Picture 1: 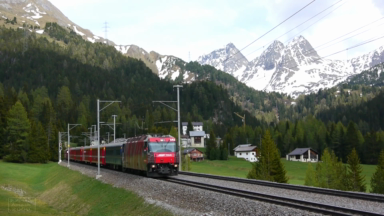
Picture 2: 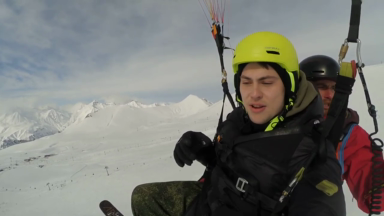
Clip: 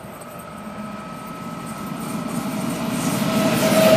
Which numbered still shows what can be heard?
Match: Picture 1